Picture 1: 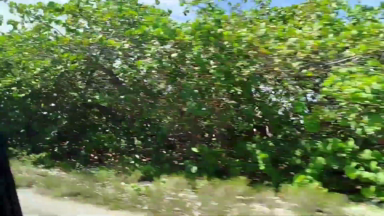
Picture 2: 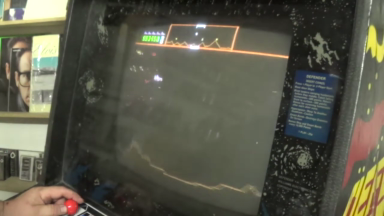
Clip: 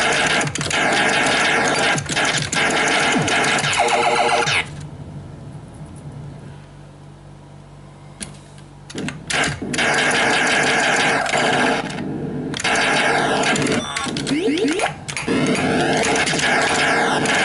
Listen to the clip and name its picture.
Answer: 2